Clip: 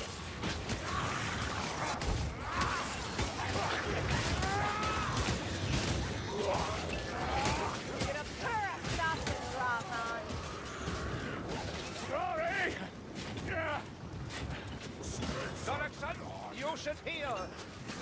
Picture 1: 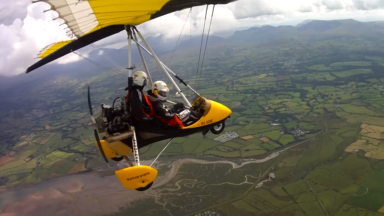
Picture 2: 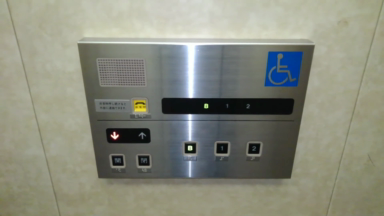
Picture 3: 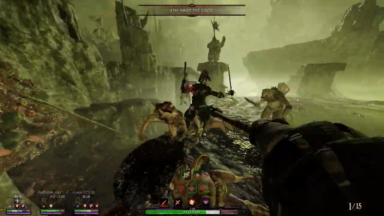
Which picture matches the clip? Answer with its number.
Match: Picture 3